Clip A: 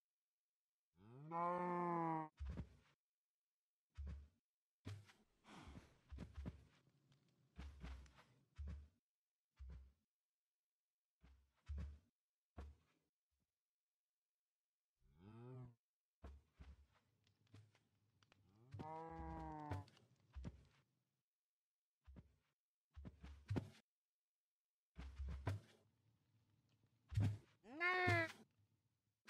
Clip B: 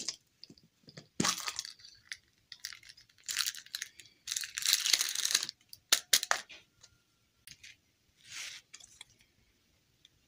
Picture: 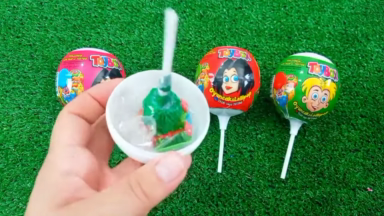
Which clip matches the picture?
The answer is B